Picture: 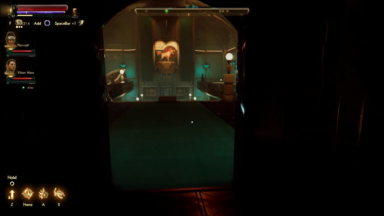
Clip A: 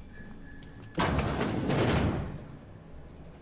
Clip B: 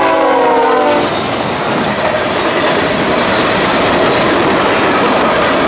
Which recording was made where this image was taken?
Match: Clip A